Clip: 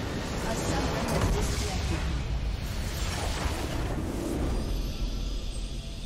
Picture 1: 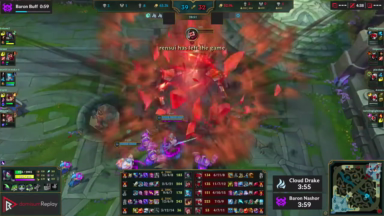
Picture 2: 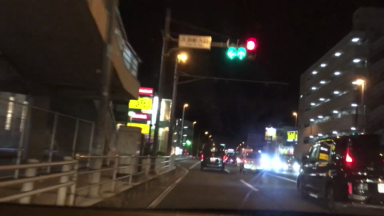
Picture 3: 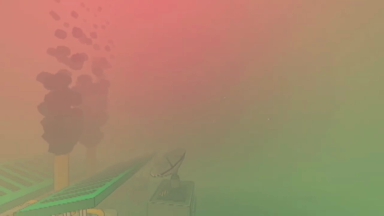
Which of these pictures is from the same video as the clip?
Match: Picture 1